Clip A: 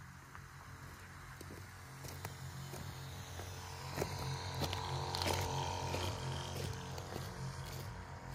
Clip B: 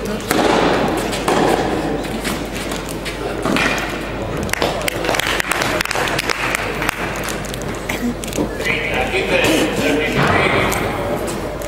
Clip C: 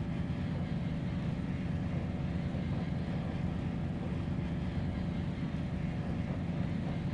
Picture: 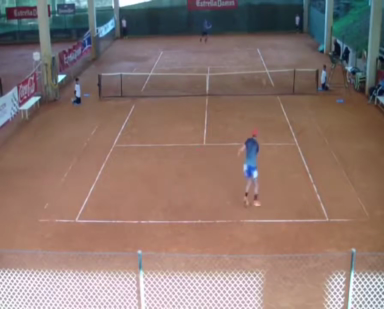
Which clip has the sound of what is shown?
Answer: B